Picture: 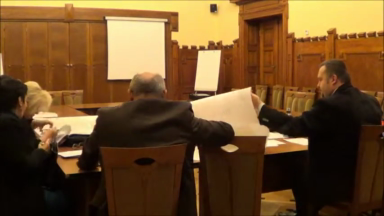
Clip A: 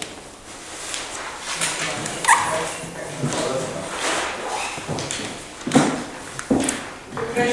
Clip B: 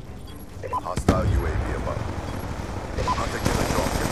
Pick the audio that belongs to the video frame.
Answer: A